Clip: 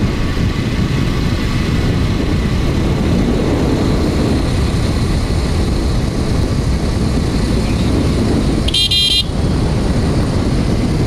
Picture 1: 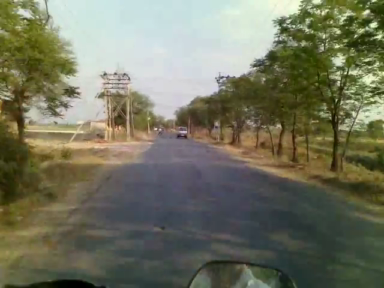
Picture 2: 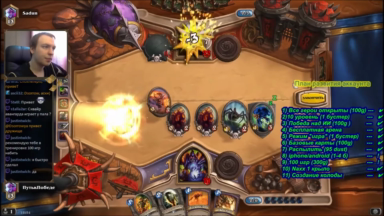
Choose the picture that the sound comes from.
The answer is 1